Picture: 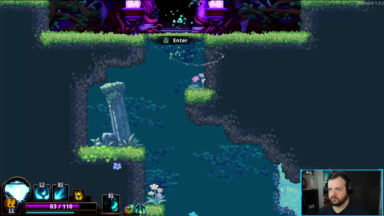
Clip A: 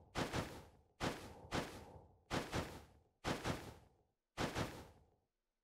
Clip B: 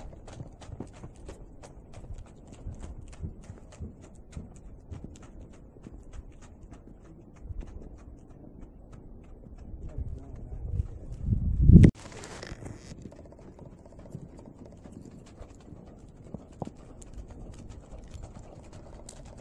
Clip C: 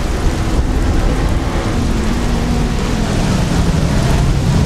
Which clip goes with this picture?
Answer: A